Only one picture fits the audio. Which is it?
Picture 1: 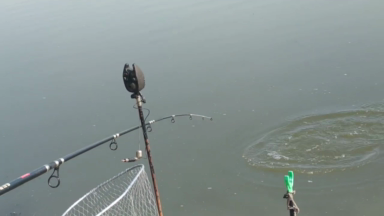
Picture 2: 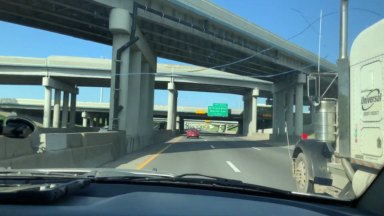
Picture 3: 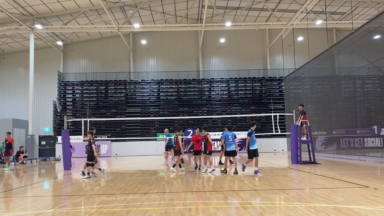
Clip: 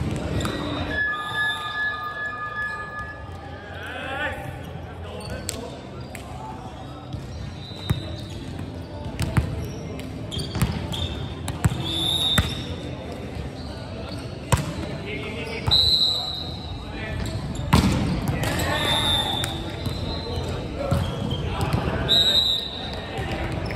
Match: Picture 3